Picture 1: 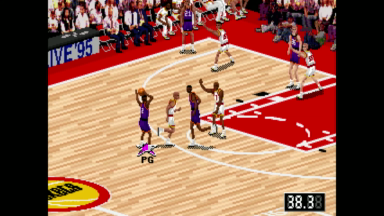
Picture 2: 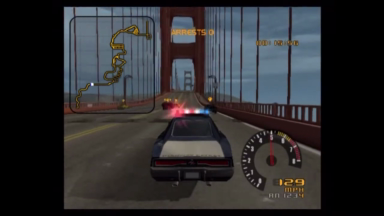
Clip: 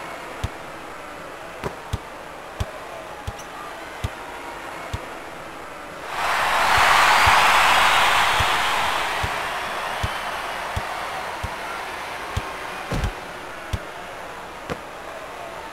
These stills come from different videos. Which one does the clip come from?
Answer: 1